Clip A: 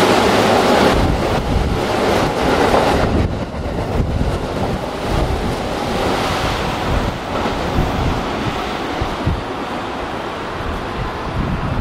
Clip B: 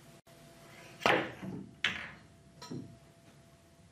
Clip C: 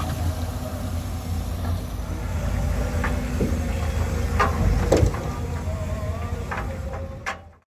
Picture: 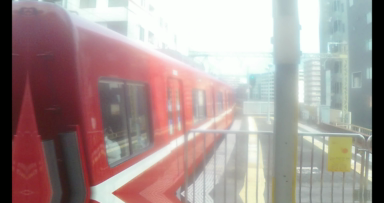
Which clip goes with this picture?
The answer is A